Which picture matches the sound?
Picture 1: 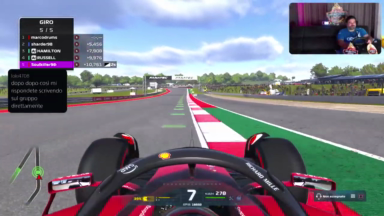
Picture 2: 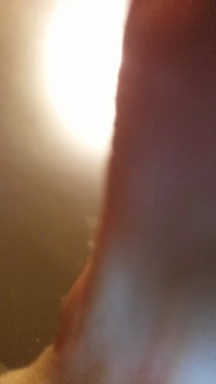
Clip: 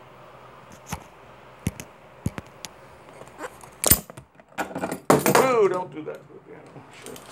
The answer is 2